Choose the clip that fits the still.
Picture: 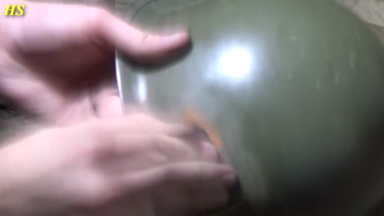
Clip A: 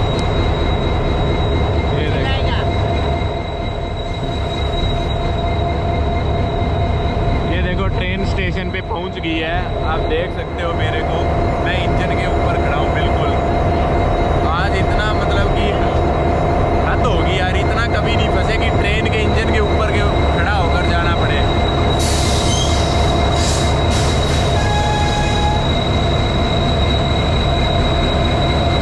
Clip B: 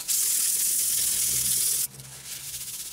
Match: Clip B